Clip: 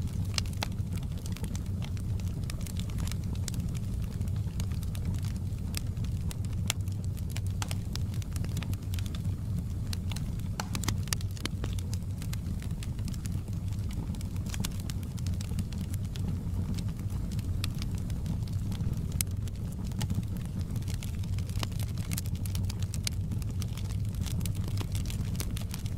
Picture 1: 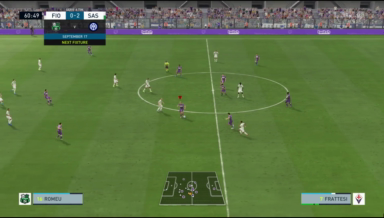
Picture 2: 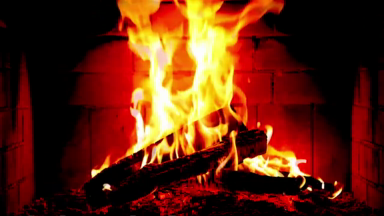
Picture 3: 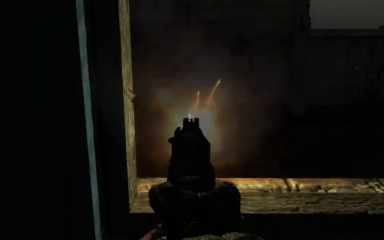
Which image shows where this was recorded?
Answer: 2